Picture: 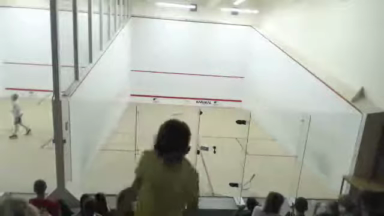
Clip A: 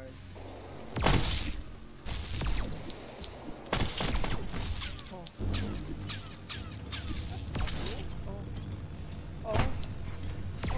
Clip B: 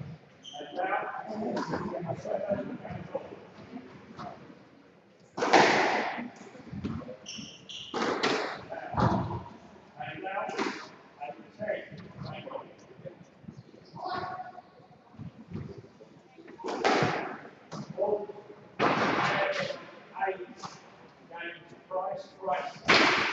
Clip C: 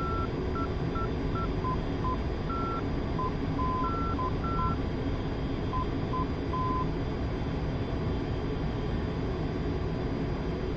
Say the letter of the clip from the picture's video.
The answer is B